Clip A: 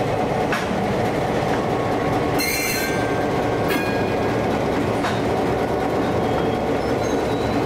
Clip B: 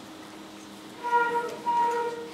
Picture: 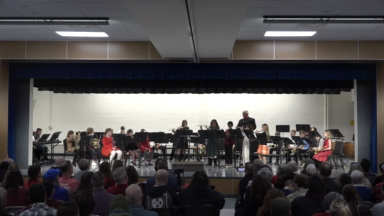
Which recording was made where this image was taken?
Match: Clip B